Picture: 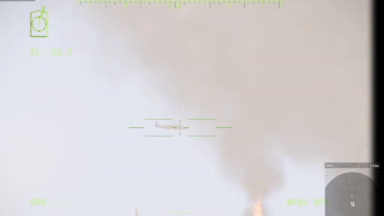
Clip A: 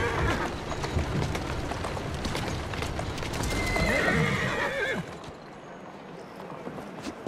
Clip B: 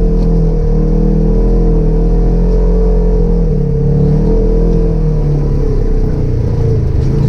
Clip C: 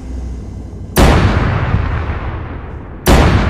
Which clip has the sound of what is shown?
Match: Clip C